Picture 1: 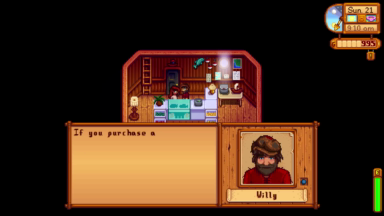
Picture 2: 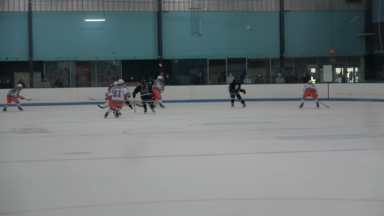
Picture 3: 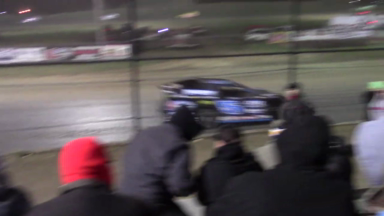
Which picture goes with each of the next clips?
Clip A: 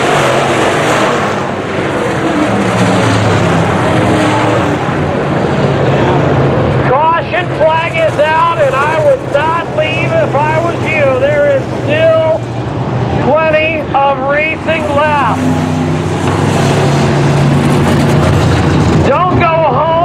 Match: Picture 3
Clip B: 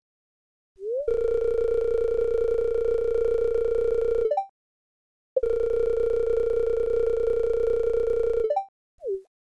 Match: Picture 1